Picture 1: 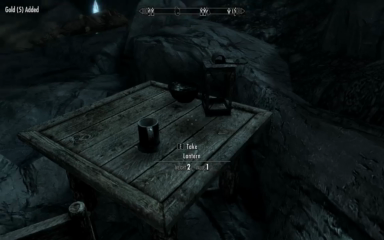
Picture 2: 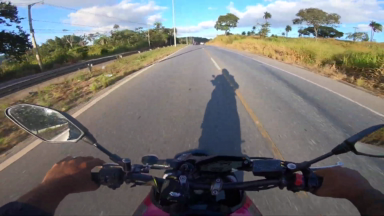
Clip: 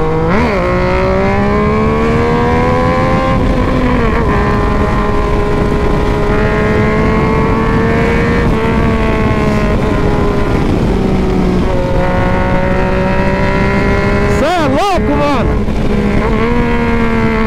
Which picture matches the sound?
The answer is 2